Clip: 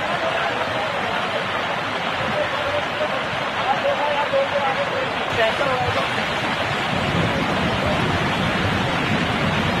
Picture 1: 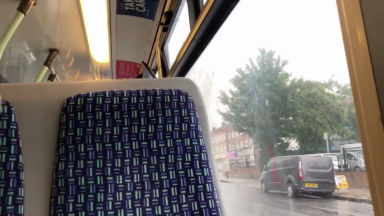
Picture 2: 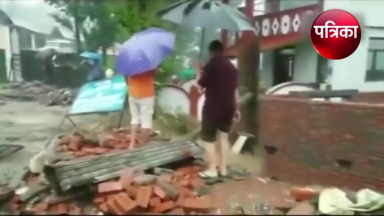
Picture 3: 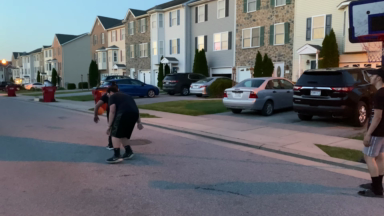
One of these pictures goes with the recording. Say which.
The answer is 2